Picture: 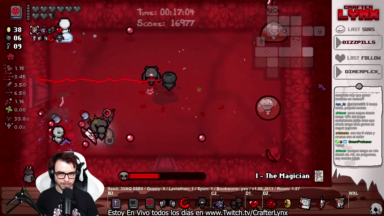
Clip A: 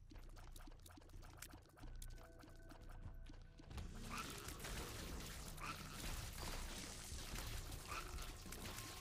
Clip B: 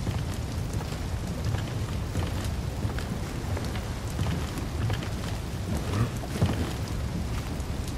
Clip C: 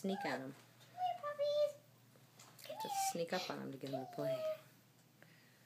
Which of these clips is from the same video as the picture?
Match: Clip A